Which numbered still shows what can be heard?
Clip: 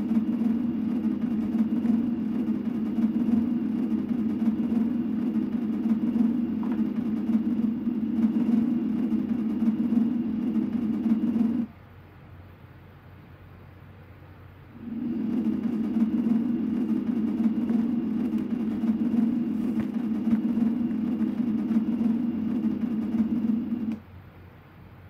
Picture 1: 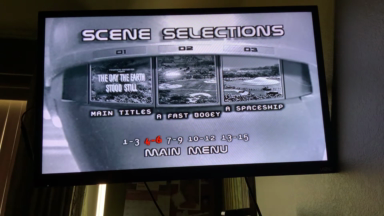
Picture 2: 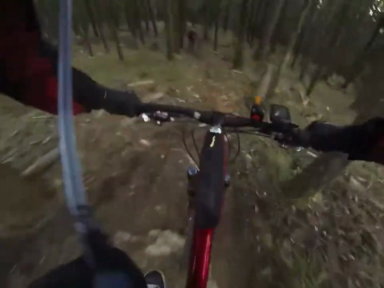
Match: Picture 1